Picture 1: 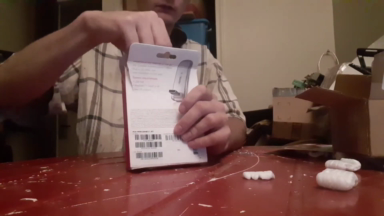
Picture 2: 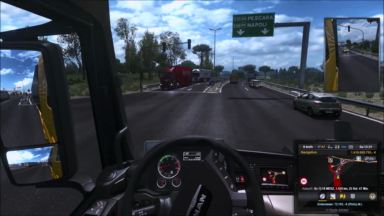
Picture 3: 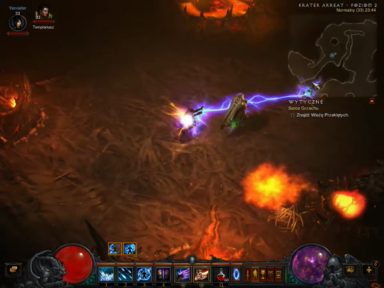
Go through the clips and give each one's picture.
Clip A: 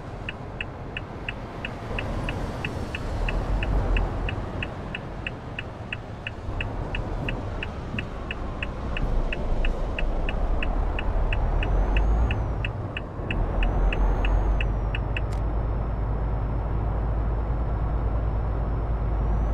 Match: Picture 2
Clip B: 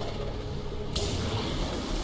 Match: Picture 3